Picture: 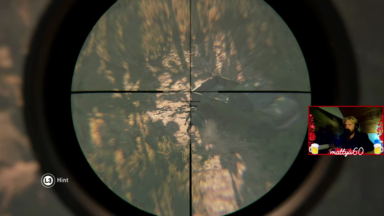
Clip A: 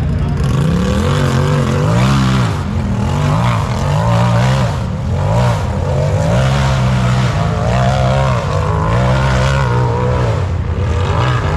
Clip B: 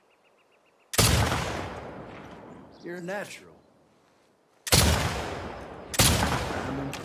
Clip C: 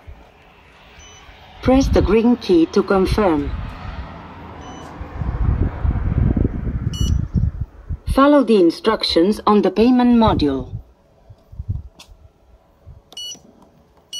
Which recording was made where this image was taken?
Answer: B